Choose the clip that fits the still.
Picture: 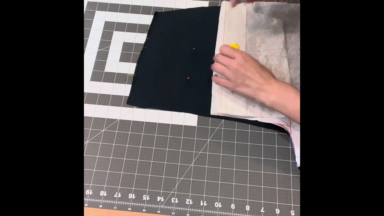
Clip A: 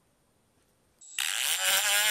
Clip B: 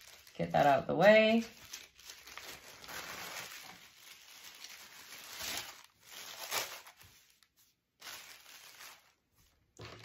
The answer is B